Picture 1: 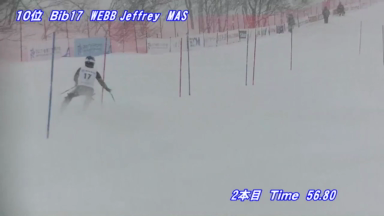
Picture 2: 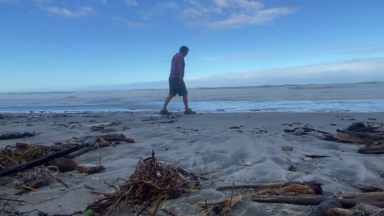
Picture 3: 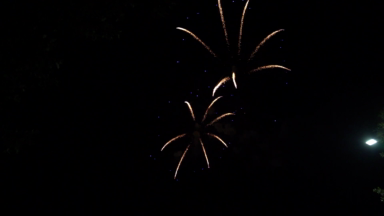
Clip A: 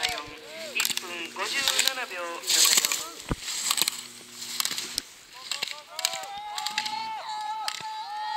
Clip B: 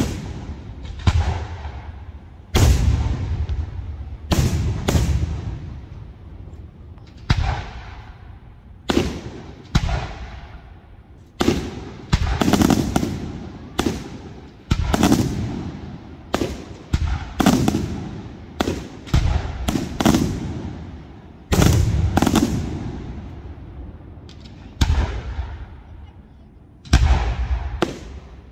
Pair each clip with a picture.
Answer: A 1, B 3